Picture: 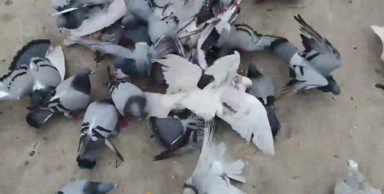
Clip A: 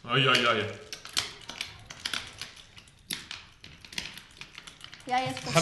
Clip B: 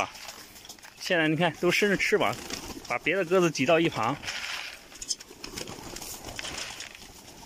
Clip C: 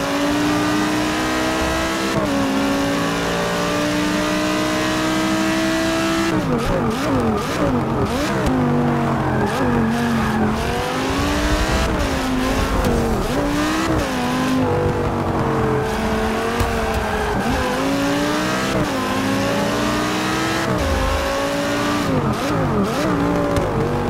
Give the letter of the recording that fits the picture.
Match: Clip B